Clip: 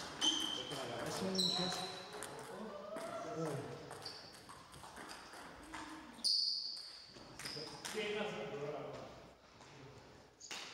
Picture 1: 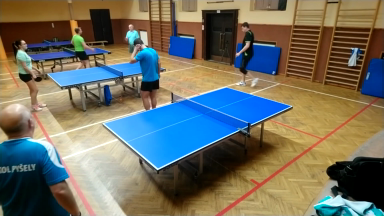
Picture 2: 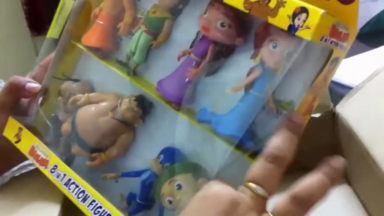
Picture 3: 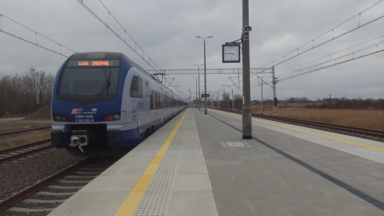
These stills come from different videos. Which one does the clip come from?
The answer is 1